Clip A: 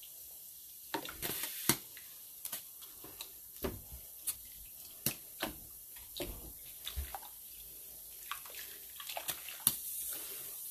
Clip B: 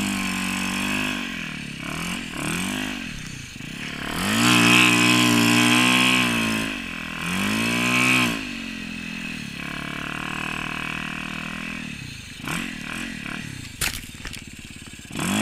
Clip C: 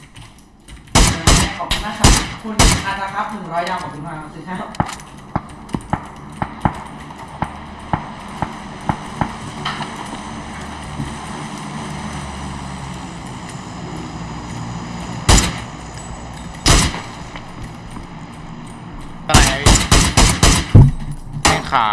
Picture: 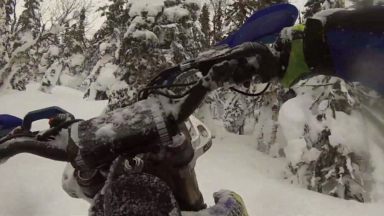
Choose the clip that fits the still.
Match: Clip B